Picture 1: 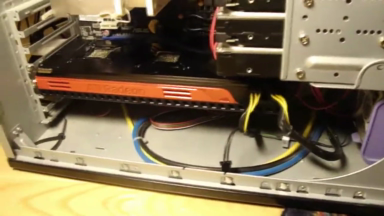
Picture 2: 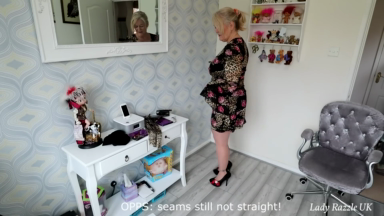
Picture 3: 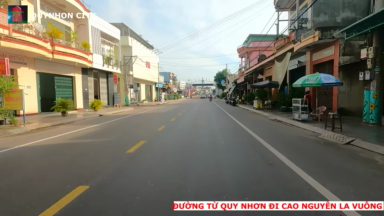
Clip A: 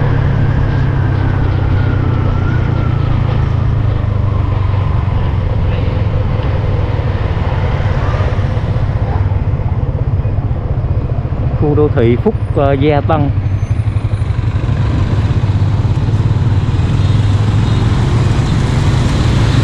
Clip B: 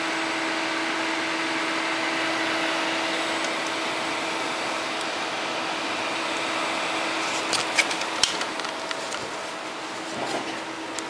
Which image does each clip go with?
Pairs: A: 3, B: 1